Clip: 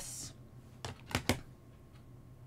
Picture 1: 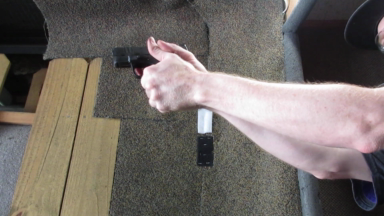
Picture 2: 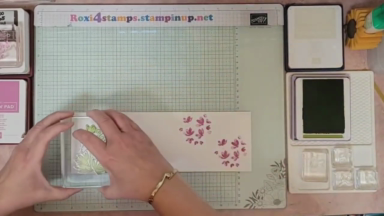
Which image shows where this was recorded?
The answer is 2